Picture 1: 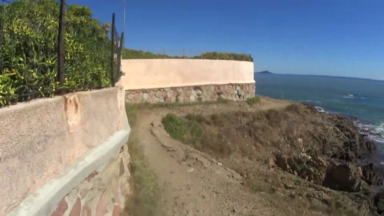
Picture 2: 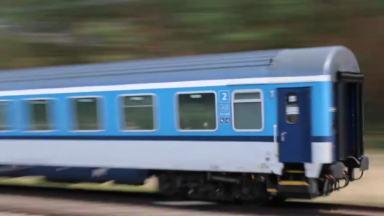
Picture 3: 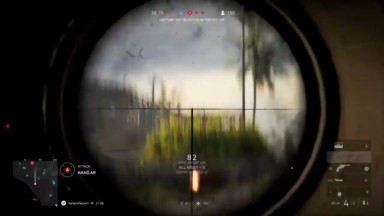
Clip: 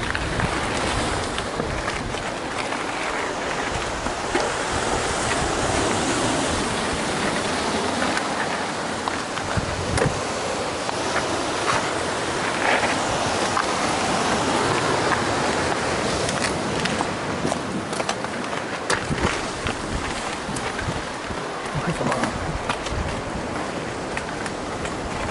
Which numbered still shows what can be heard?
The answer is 1